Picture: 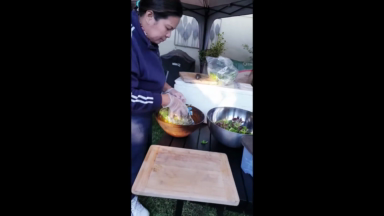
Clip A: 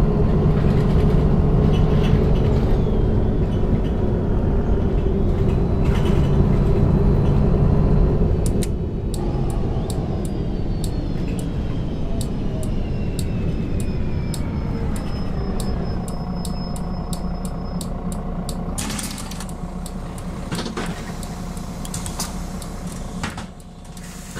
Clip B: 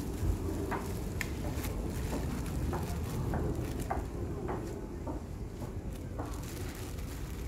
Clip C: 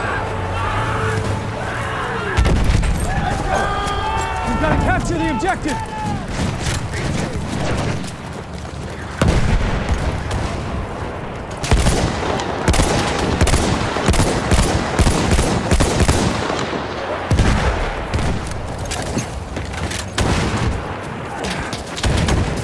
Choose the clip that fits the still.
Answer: B